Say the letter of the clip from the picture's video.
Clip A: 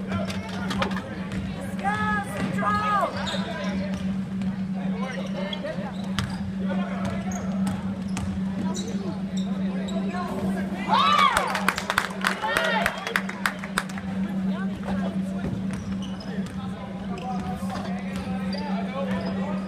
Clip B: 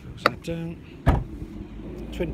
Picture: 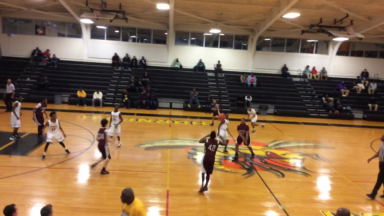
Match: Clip A